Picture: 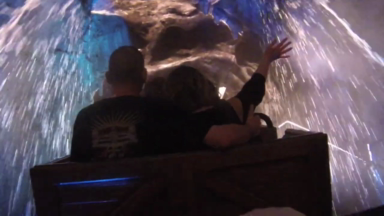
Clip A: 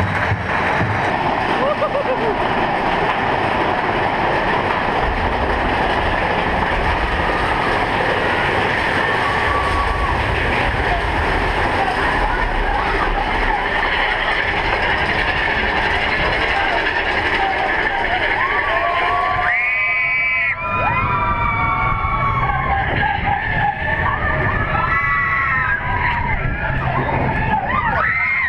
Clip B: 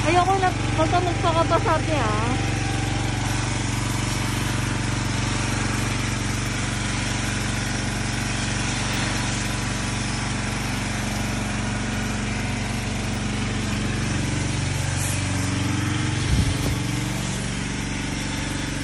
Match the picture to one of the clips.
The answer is A